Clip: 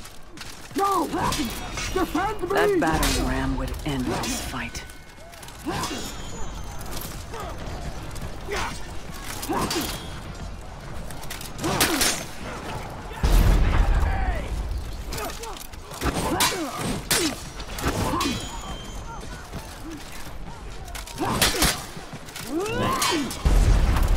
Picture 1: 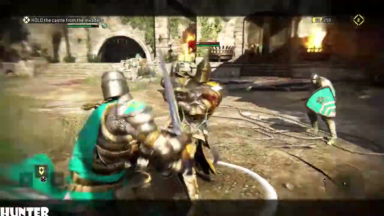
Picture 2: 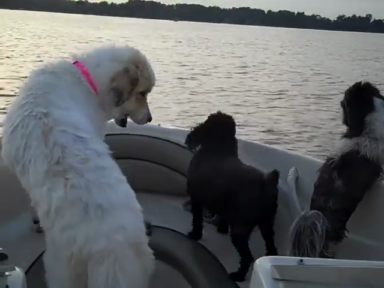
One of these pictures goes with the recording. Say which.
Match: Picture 1